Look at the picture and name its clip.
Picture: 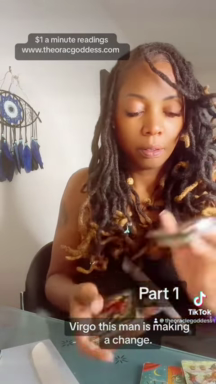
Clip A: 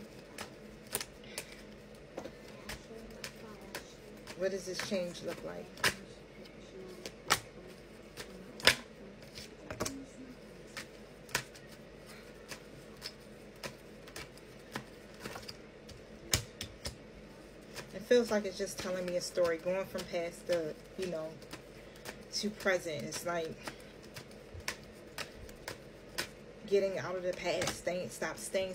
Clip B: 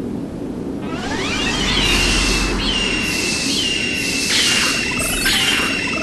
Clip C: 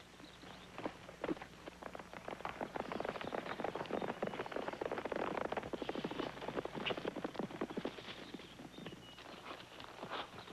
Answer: A